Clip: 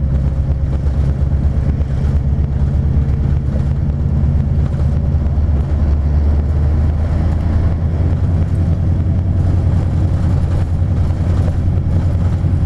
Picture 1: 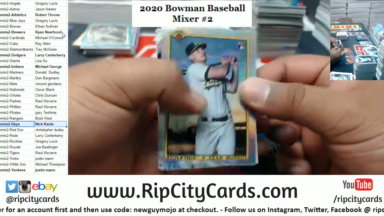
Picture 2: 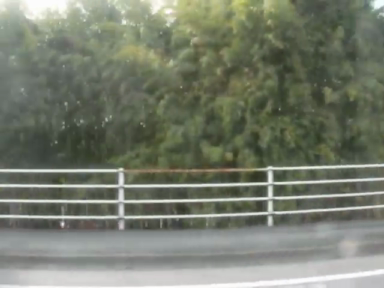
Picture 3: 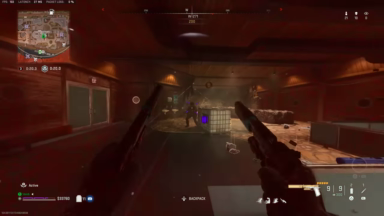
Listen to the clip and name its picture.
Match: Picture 2